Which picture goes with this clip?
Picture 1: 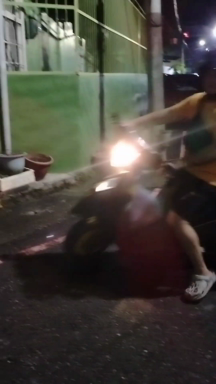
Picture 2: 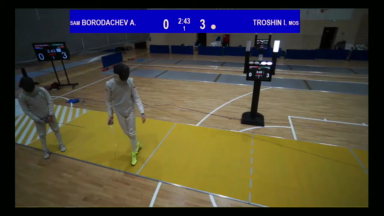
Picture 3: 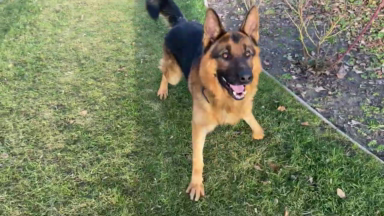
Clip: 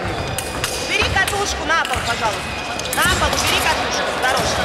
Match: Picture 2